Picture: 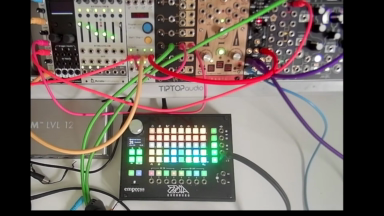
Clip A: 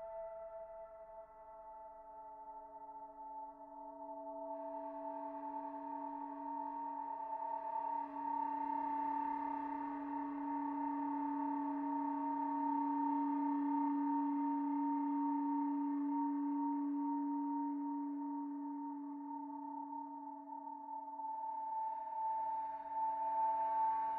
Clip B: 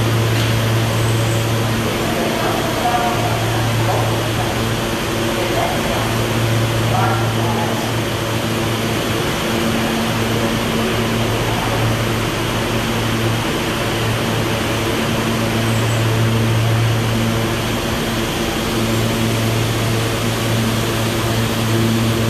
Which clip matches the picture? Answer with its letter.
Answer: A